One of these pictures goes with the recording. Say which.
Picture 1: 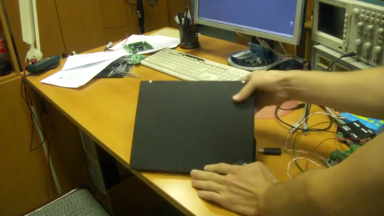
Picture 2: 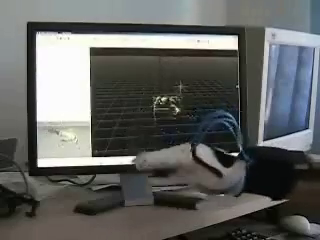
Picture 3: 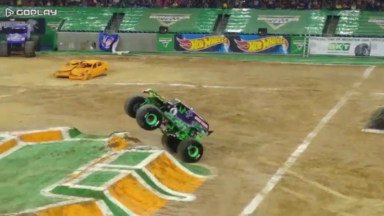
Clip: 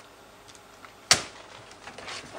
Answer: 1